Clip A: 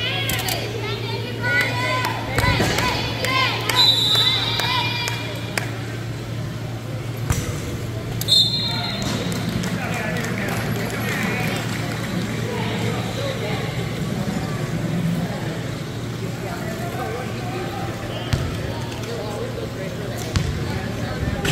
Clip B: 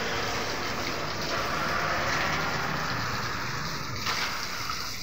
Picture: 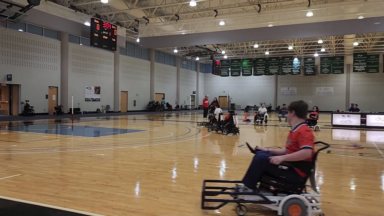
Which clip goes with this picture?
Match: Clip A